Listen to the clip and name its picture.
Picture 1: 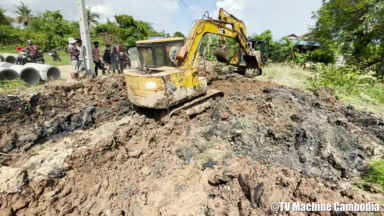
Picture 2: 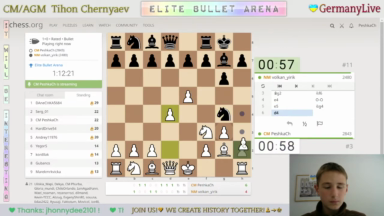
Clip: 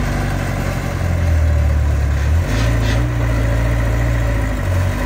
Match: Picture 1